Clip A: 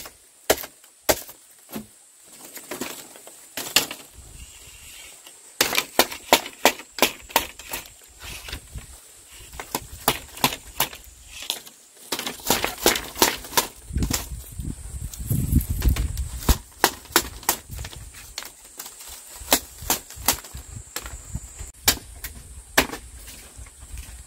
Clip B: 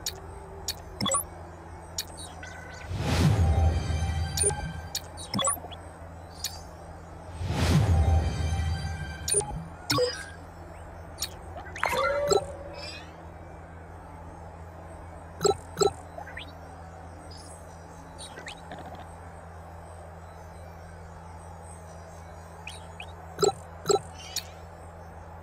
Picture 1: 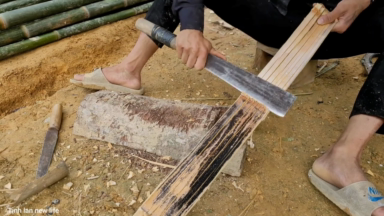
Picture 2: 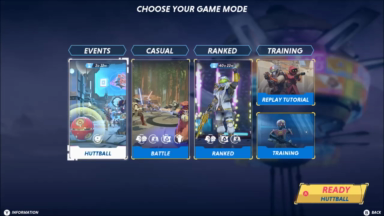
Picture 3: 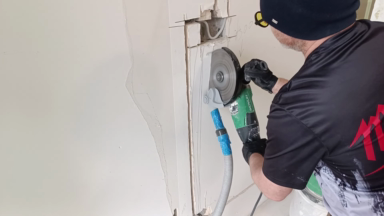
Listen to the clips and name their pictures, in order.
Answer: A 1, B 2